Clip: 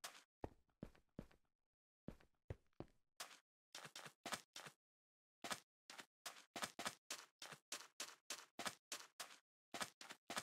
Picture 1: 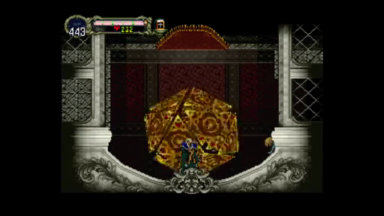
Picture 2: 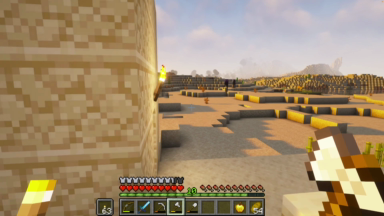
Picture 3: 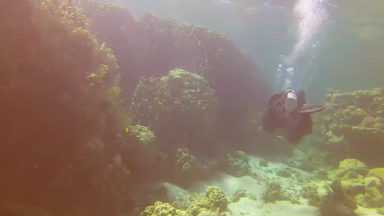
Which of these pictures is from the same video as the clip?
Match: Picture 2